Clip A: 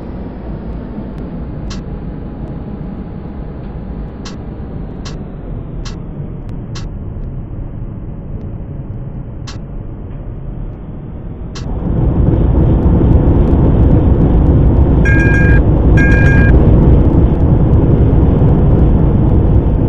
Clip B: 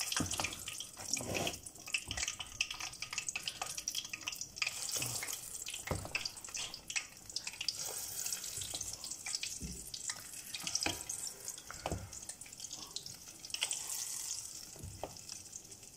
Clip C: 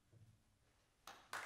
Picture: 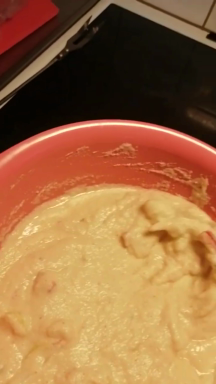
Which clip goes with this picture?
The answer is B